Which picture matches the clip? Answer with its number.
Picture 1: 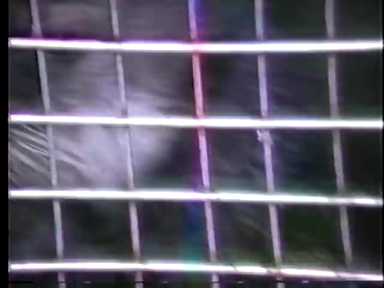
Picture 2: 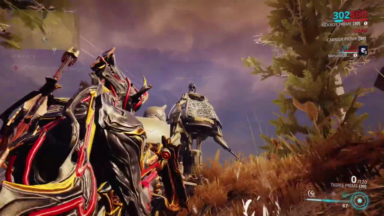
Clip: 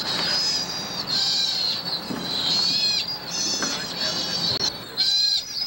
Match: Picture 1